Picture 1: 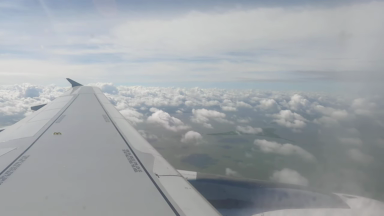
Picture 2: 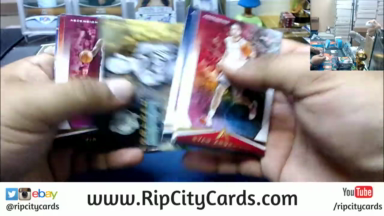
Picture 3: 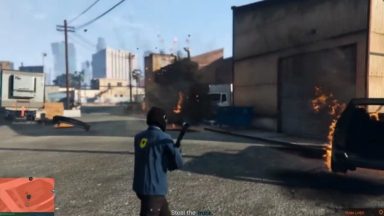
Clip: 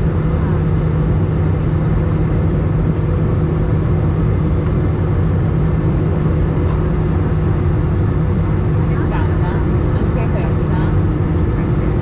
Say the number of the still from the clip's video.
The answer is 1